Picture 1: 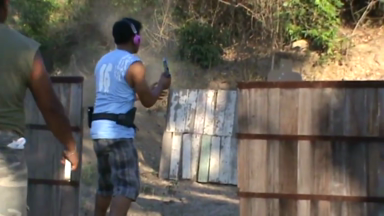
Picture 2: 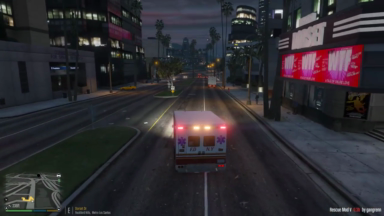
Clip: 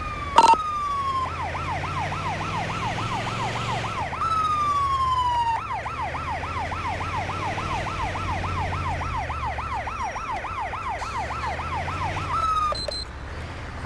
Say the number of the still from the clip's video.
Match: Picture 2